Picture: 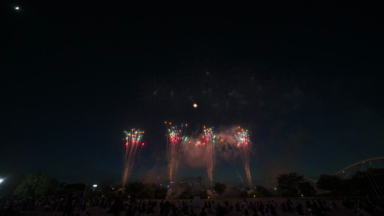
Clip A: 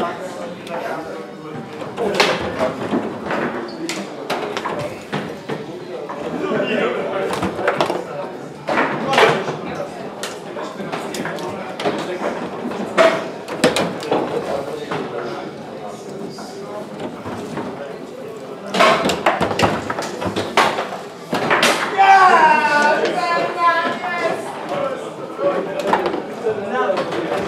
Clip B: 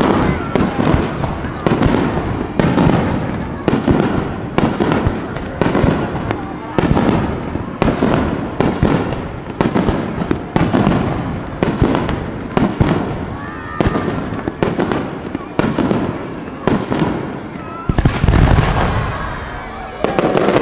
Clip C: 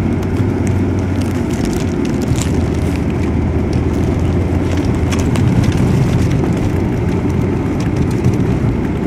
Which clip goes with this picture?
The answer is B